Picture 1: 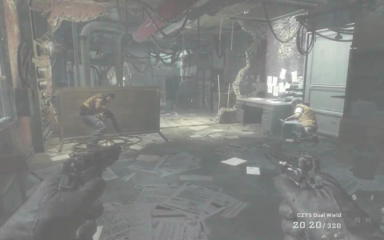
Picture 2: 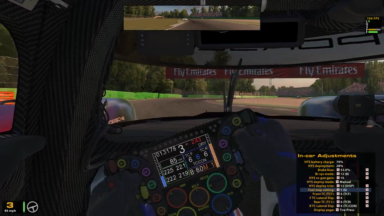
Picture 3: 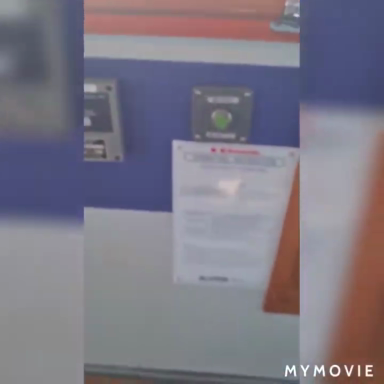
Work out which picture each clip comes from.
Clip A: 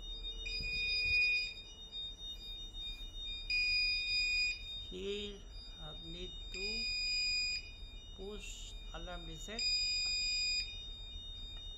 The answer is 3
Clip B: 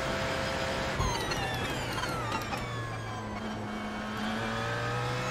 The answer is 2